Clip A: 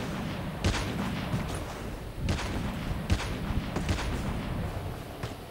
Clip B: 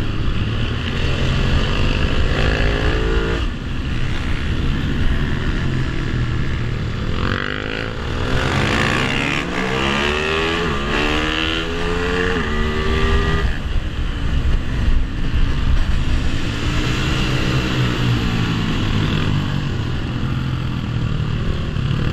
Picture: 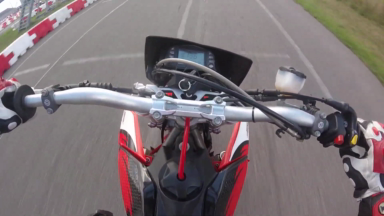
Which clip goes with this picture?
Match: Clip B